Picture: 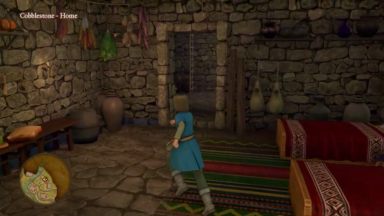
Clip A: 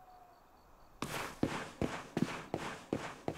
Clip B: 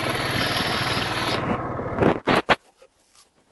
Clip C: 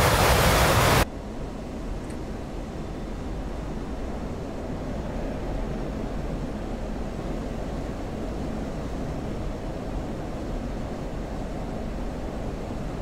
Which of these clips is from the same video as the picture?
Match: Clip A